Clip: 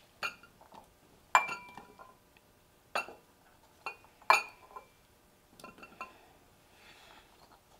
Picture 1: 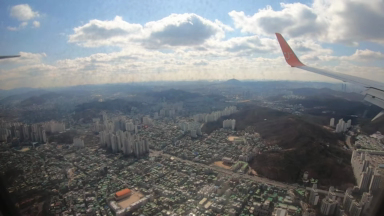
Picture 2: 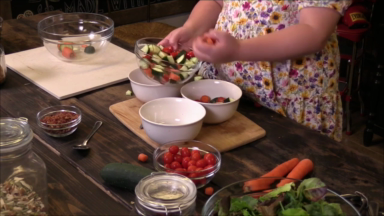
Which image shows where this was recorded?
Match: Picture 2